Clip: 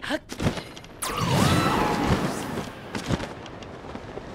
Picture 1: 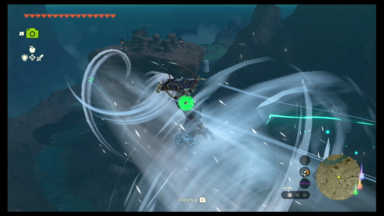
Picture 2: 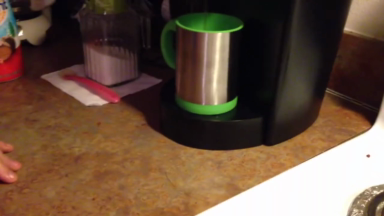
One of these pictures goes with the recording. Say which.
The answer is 1